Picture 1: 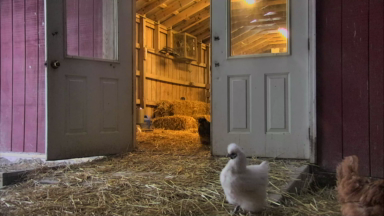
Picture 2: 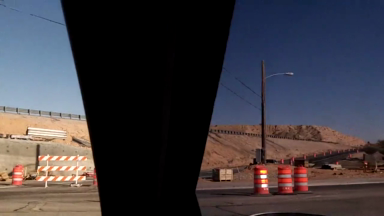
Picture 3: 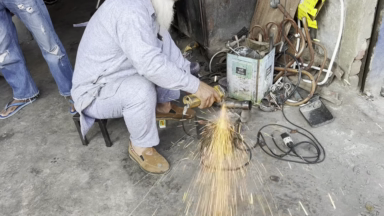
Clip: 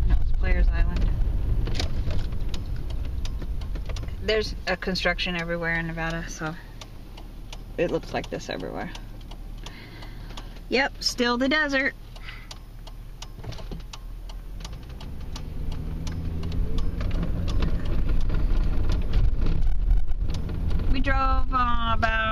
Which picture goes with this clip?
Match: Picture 2